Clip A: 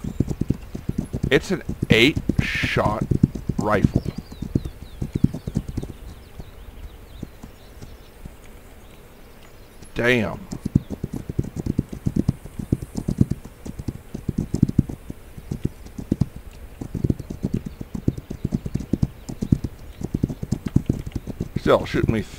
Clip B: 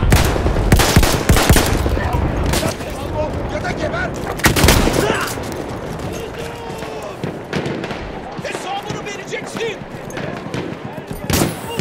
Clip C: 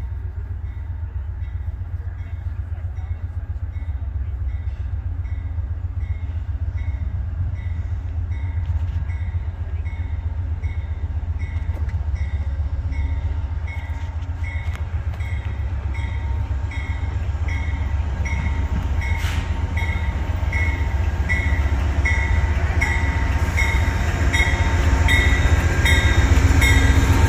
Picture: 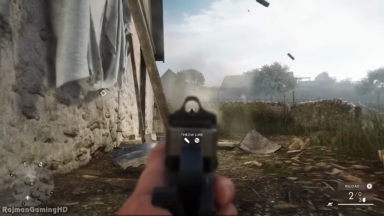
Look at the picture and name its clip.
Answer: B